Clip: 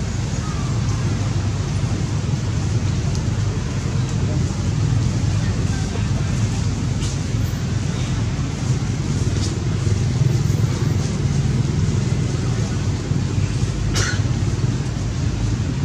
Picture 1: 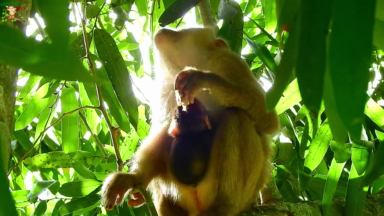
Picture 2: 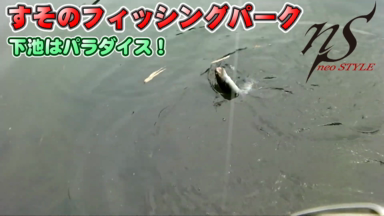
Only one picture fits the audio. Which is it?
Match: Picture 1